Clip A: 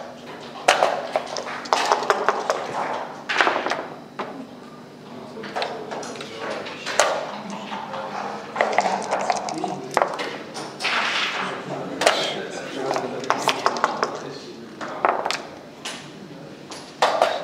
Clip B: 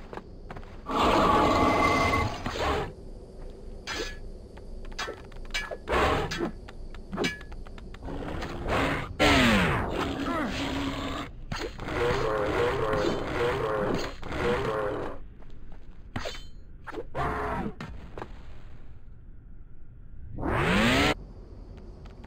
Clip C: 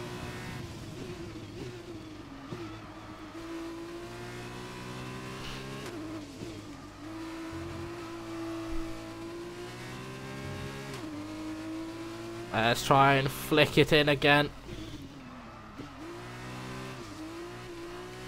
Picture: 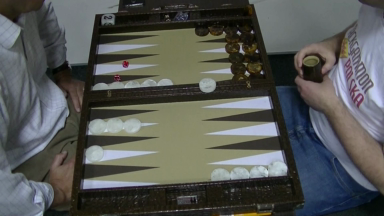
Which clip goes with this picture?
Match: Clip A